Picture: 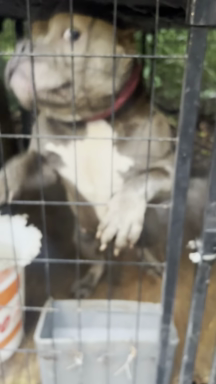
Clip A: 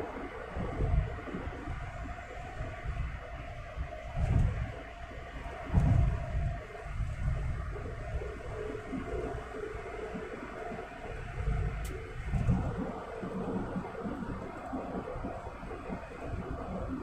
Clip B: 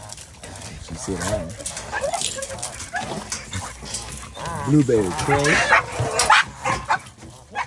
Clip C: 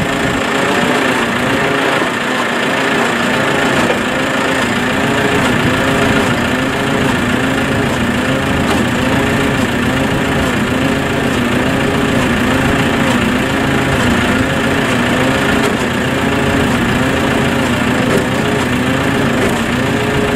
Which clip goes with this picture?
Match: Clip B